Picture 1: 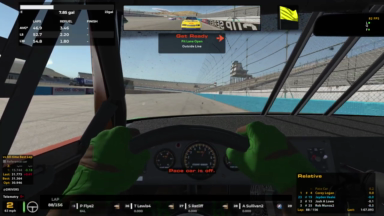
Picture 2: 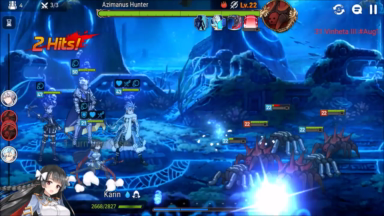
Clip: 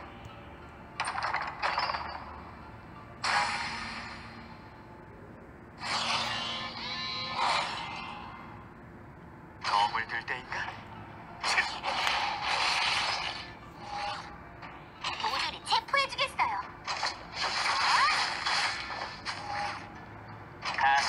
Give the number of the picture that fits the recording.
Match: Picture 2